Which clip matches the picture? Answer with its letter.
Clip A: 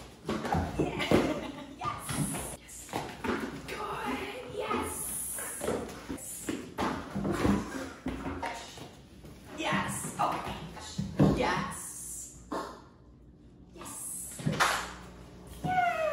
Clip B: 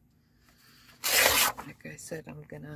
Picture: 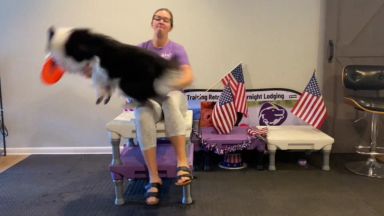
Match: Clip A